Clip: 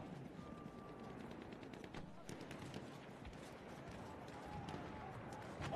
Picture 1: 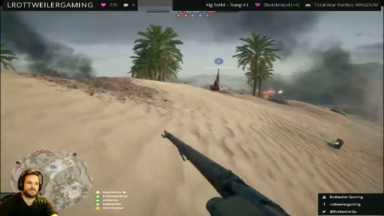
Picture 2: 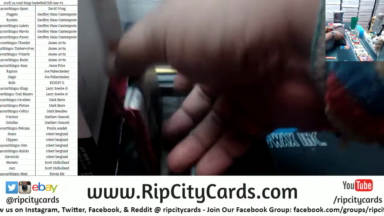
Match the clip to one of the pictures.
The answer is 1